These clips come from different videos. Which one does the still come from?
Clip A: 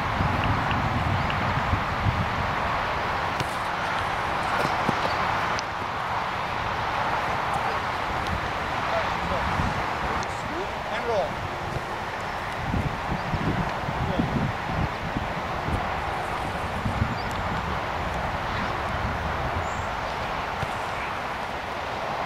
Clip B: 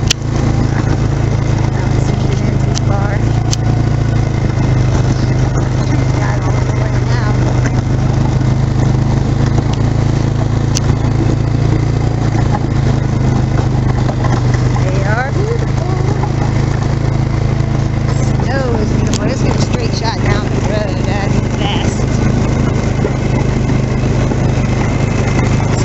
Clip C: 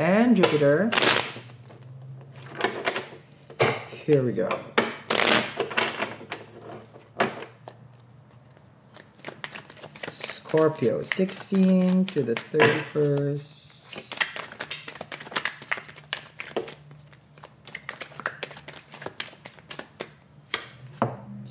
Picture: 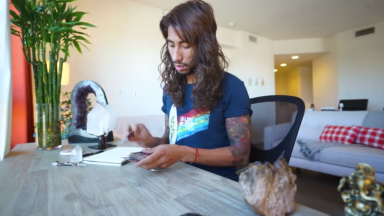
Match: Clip C